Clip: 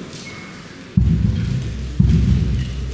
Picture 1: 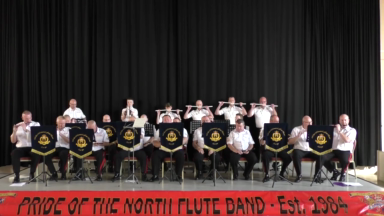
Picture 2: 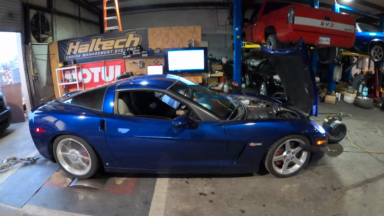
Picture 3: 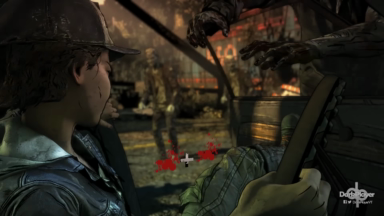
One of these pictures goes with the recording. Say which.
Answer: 1